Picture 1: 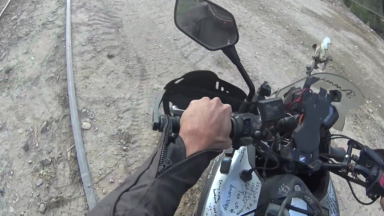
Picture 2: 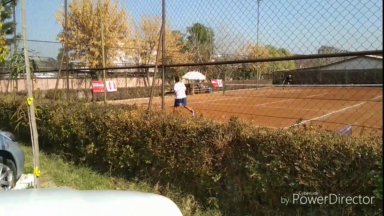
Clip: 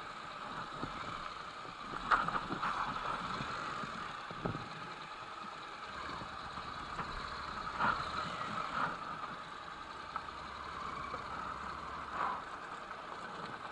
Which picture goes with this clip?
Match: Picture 1